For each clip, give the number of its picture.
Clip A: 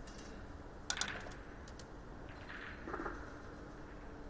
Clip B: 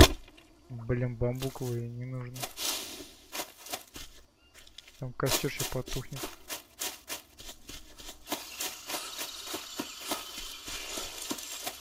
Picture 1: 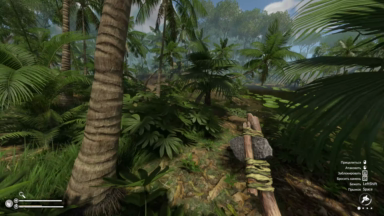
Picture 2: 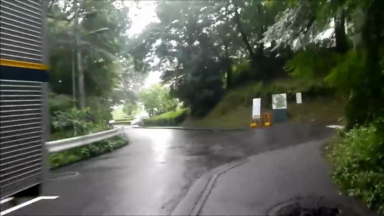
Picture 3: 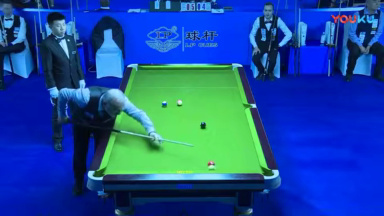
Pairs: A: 3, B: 1